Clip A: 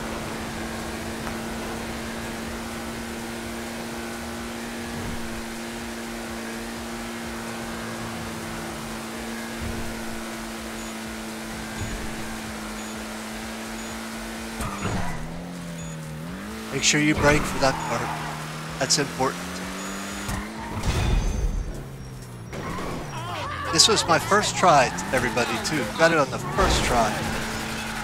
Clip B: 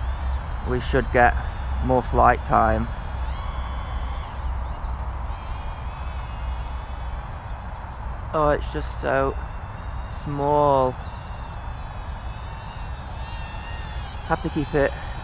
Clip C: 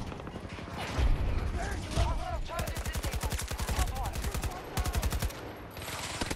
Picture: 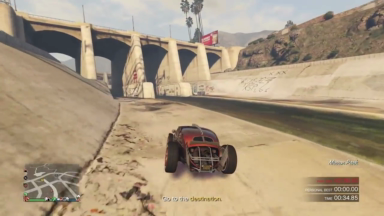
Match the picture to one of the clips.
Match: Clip A